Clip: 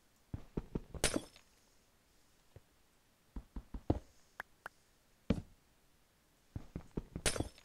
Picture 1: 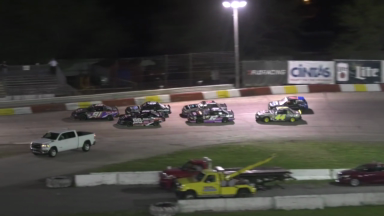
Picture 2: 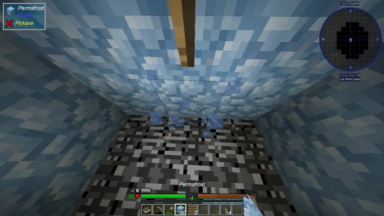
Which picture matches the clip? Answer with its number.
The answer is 2